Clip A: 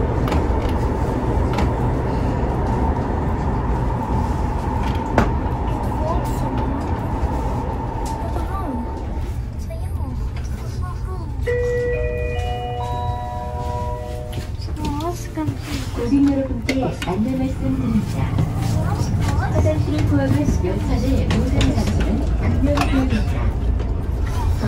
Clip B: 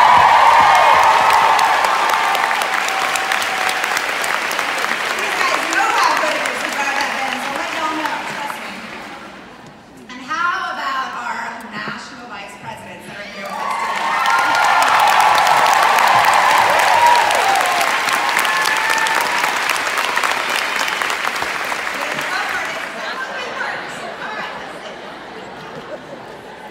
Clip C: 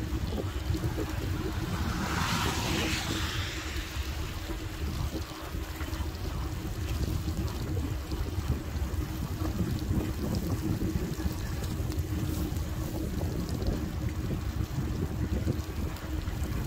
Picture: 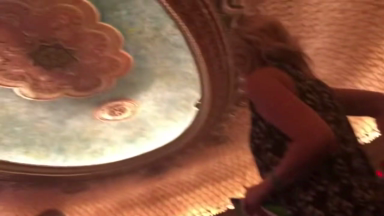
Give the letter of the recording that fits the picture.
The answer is B